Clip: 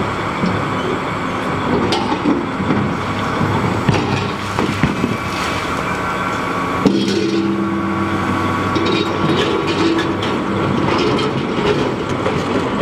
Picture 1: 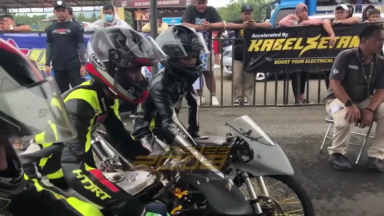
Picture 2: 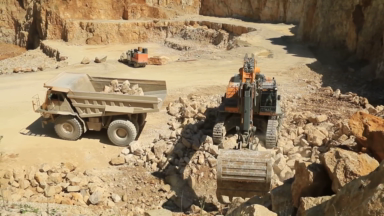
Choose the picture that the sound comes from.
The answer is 2